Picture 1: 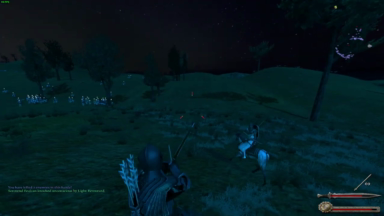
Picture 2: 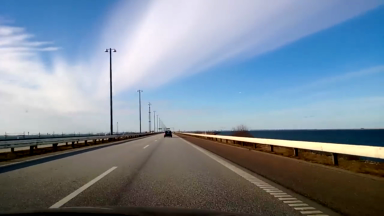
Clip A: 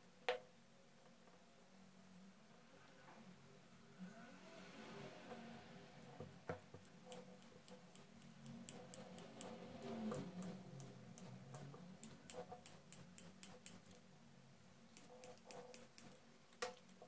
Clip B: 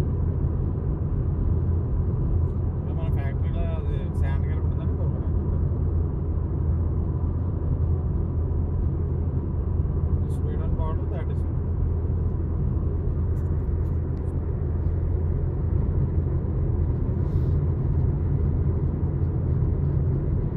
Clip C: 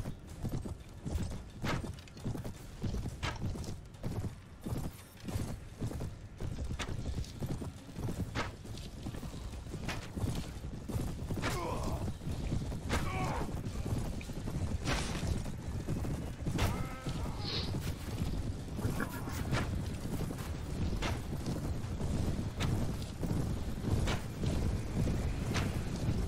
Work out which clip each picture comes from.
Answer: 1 C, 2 B